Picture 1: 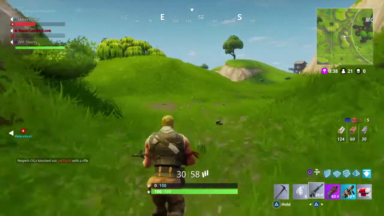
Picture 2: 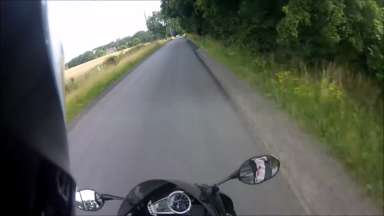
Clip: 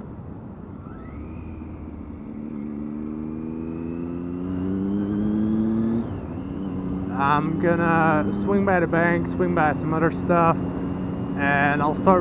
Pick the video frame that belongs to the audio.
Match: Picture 2